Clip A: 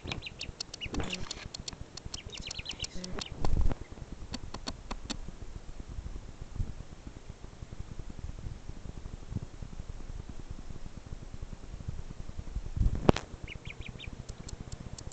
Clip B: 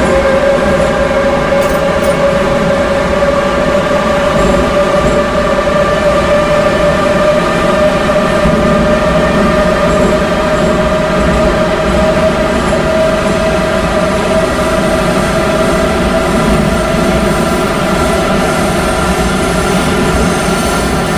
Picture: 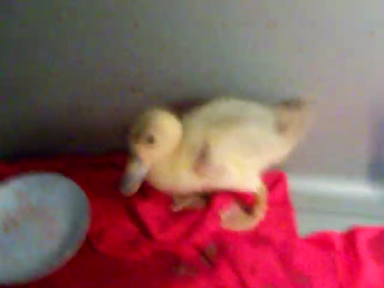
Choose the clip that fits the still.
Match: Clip A